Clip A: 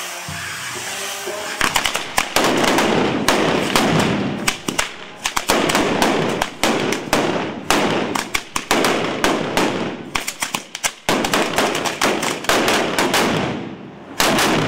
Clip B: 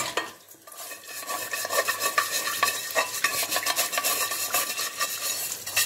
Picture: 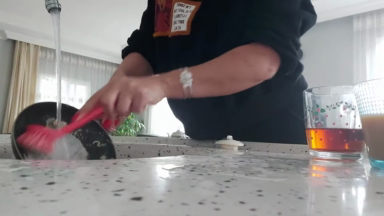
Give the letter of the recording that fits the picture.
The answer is B